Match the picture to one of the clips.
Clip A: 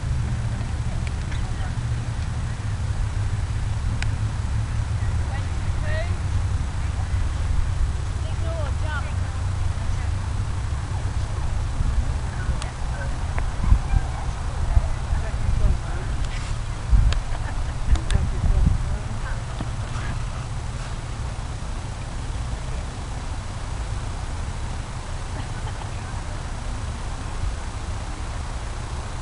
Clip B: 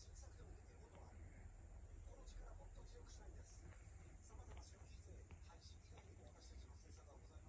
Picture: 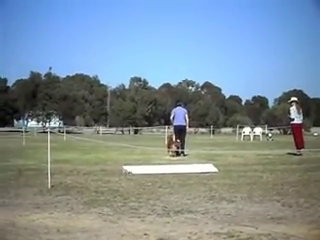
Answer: A